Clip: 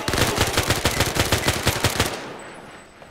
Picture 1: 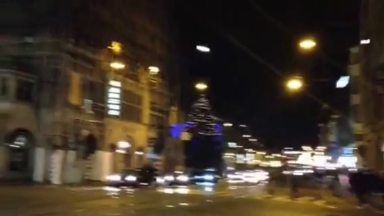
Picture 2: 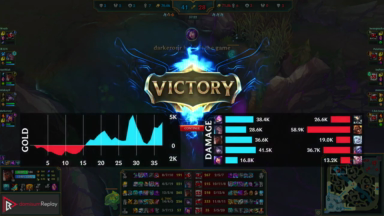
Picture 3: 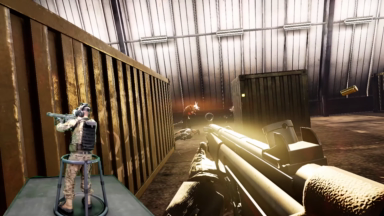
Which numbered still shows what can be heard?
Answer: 3